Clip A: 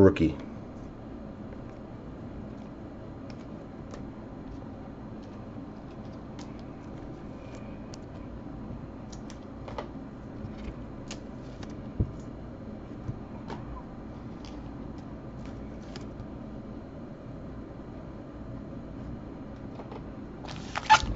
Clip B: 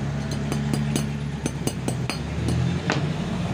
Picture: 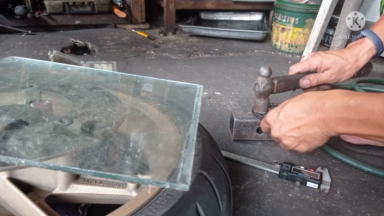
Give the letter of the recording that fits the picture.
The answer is B